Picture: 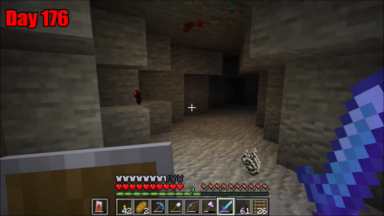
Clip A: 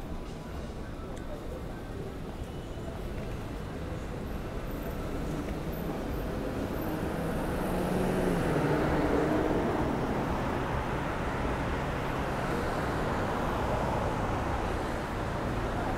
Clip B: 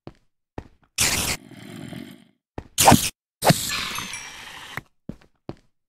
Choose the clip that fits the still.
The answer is B